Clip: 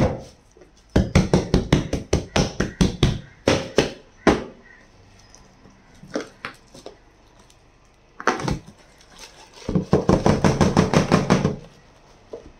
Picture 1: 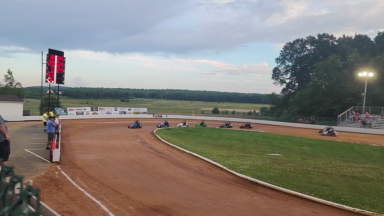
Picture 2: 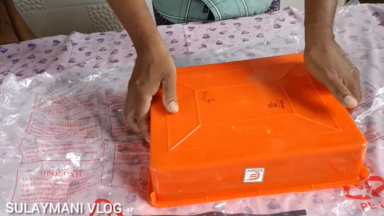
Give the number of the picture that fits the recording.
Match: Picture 2